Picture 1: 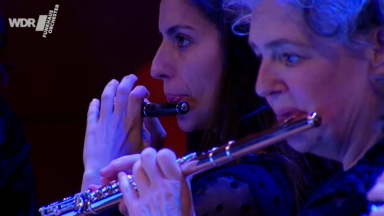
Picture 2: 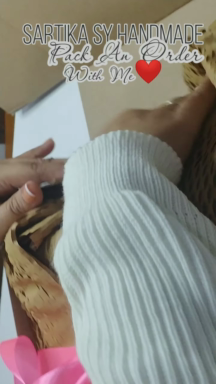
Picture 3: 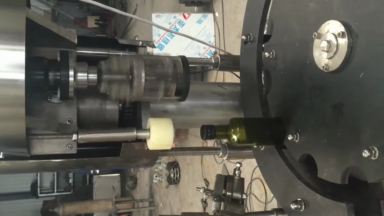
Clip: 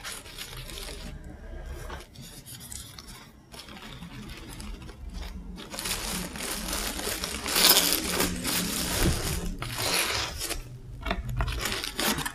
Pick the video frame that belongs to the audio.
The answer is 2